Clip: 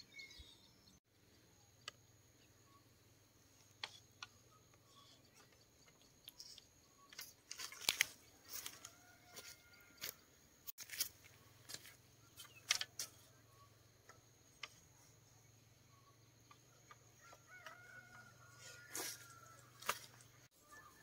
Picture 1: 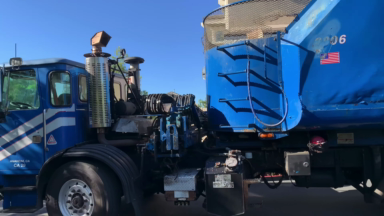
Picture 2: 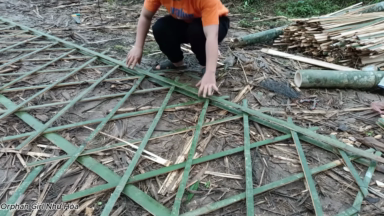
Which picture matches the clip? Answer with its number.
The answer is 2